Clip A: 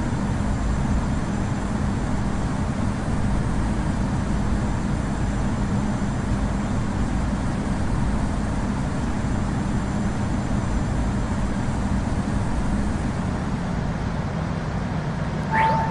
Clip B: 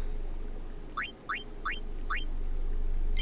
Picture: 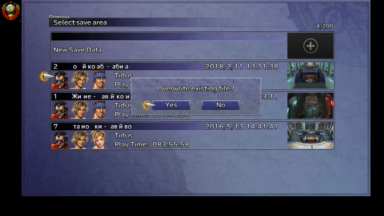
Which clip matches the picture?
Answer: B